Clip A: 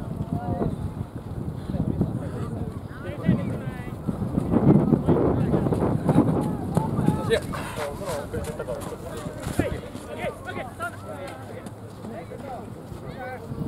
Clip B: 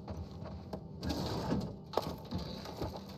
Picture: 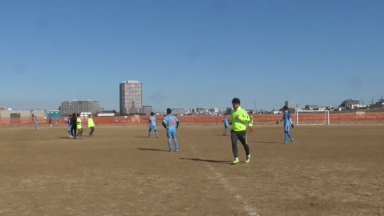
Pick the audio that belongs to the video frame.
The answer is A